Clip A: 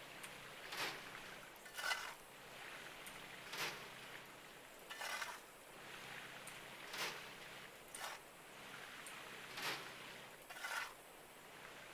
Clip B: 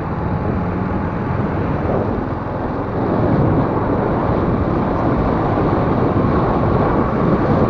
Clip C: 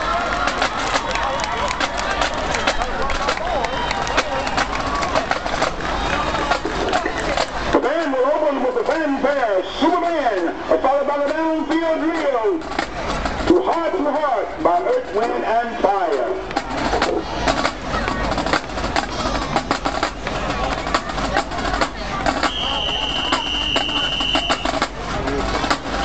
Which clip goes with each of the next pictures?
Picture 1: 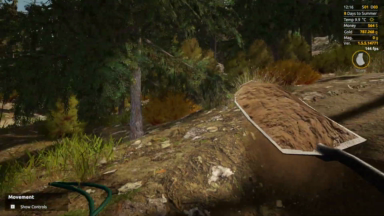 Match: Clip A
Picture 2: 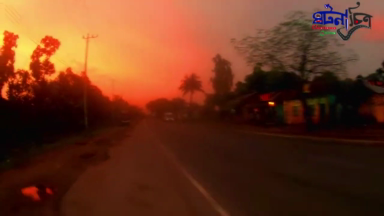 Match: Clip B